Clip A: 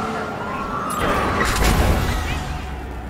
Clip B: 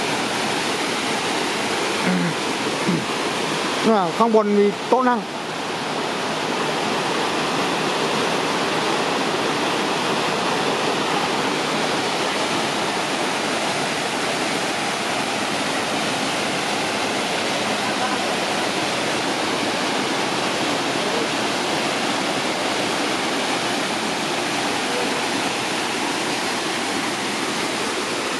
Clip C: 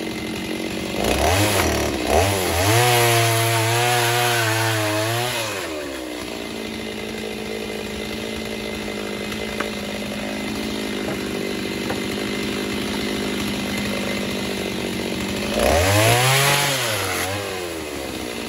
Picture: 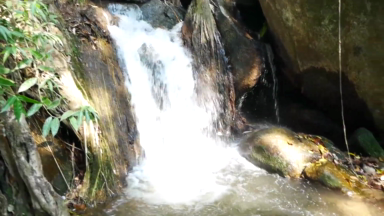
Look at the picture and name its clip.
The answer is B